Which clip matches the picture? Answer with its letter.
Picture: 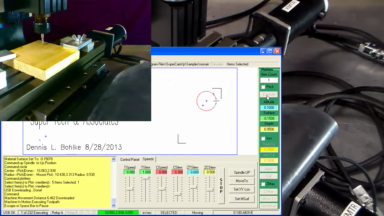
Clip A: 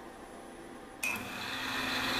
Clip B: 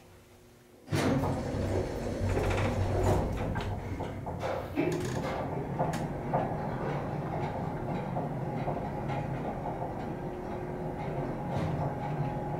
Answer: A